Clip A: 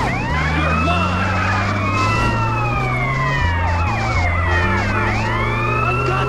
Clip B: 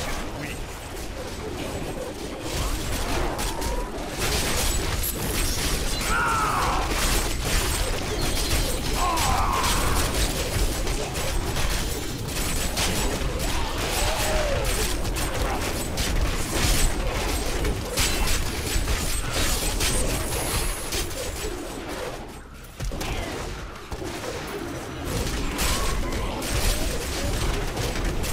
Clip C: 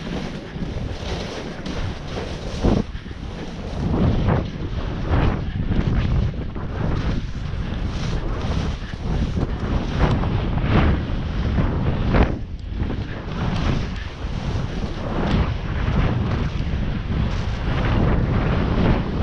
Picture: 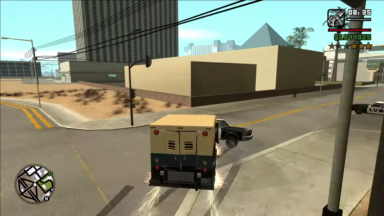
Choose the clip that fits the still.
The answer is A